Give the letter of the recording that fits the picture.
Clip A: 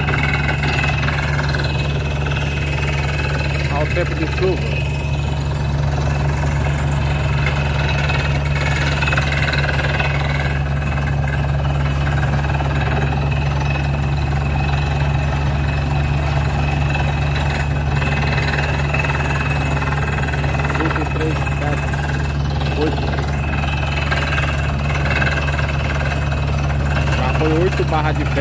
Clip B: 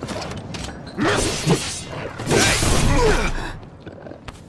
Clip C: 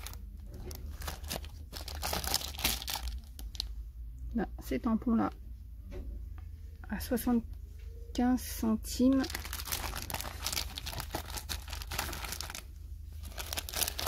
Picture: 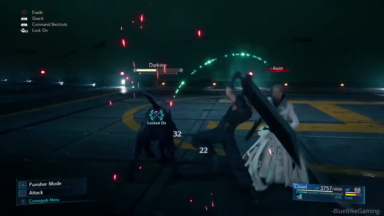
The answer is B